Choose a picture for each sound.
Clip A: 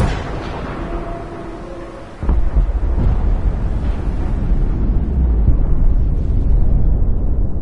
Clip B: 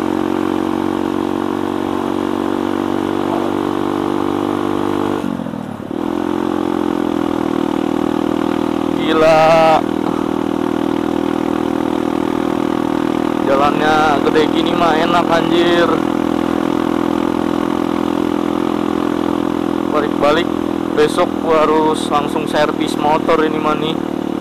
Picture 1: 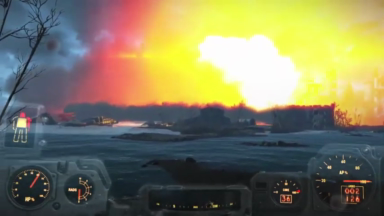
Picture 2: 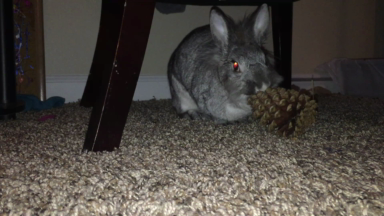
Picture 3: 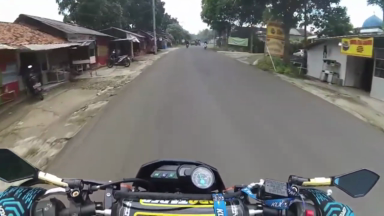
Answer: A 1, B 3